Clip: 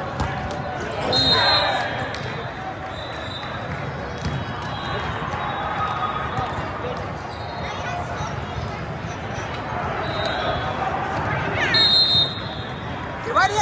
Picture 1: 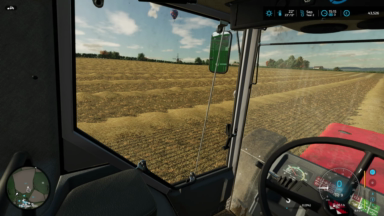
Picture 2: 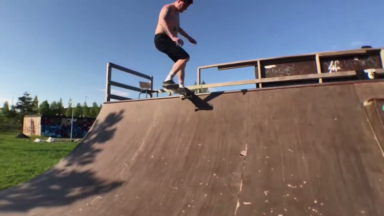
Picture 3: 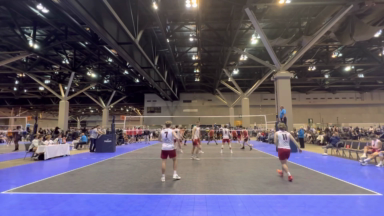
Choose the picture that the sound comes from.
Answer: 3